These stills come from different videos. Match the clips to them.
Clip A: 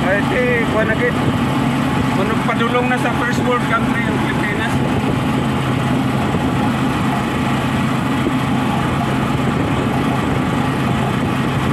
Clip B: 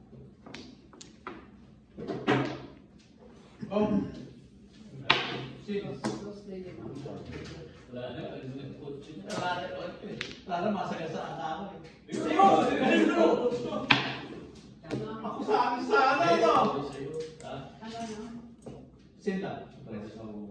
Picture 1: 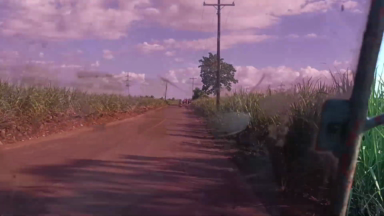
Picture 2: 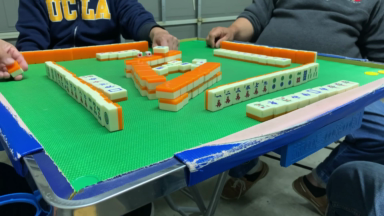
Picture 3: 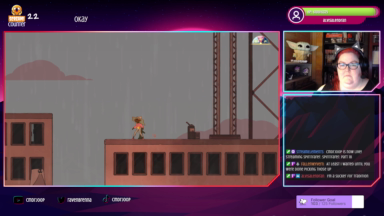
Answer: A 1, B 2